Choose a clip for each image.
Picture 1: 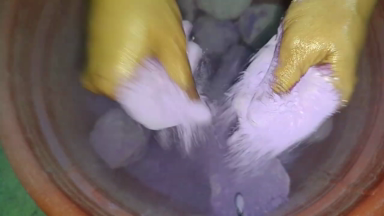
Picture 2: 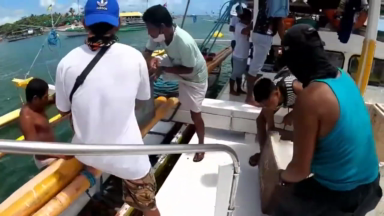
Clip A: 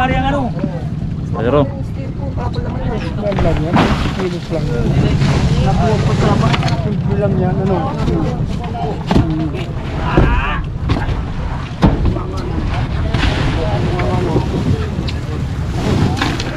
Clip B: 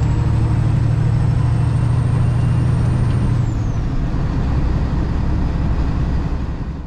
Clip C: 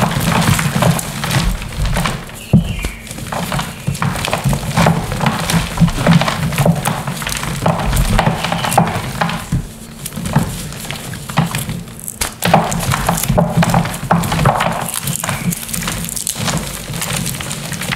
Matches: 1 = C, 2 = A